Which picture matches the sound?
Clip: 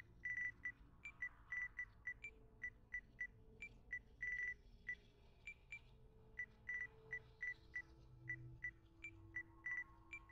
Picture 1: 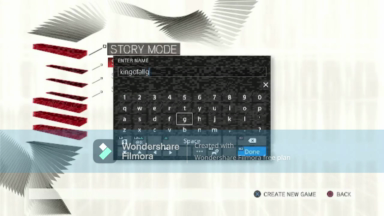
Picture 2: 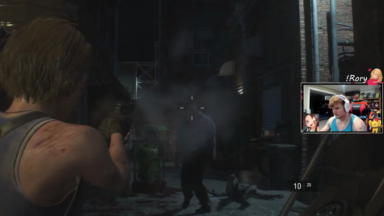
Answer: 1